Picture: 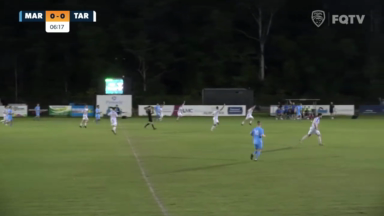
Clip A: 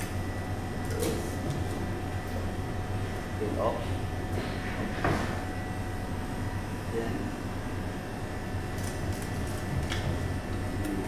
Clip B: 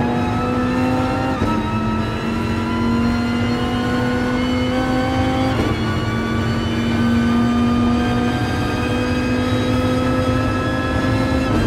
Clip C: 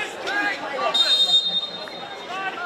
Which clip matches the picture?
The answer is C